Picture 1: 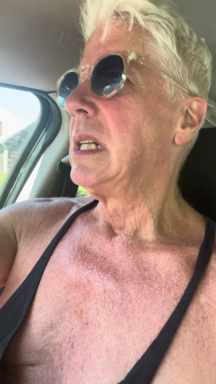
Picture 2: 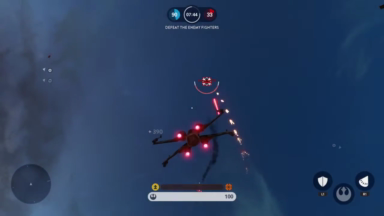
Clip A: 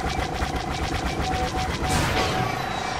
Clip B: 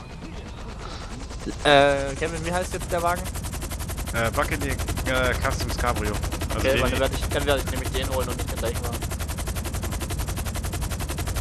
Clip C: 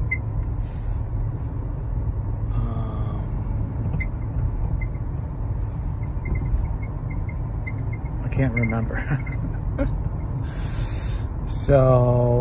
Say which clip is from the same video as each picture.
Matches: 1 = C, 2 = A